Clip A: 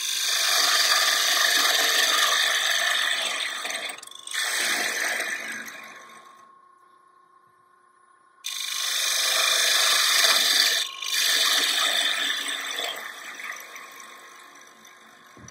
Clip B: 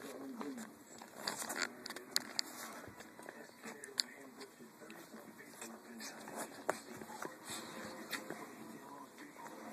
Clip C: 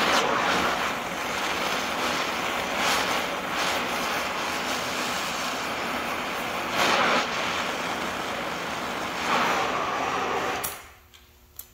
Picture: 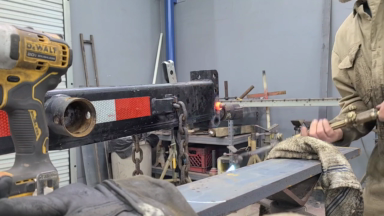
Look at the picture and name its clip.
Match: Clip C